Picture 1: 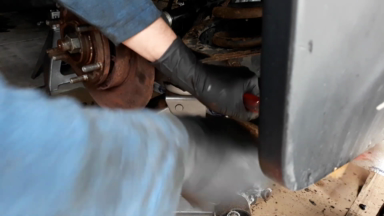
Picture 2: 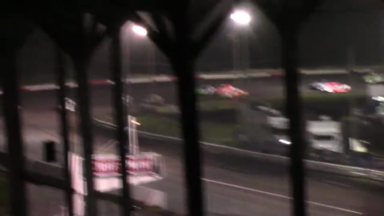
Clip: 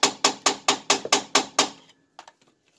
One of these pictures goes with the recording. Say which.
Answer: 1